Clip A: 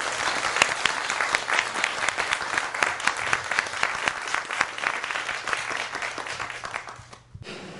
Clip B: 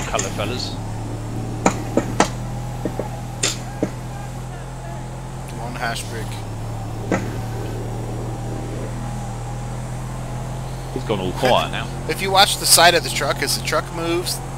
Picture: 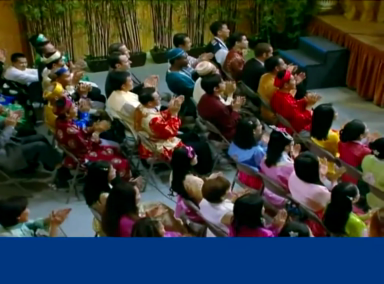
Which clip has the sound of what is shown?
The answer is A